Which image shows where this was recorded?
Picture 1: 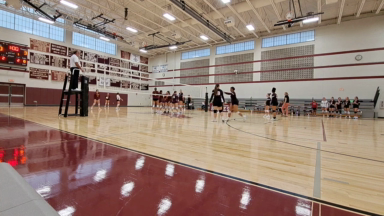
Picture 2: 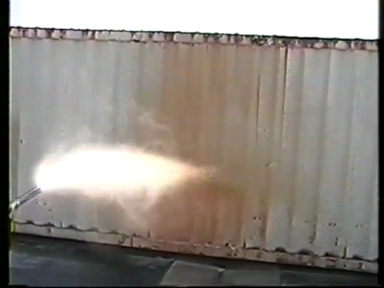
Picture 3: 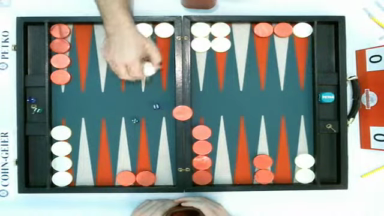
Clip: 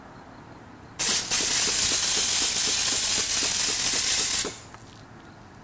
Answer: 2